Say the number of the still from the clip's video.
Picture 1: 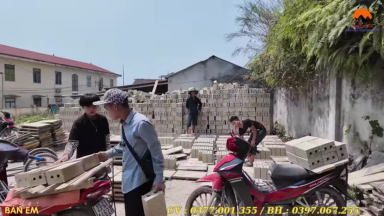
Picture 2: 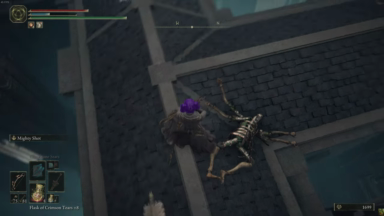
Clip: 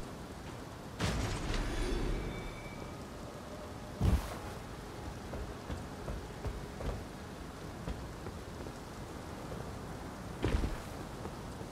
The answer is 2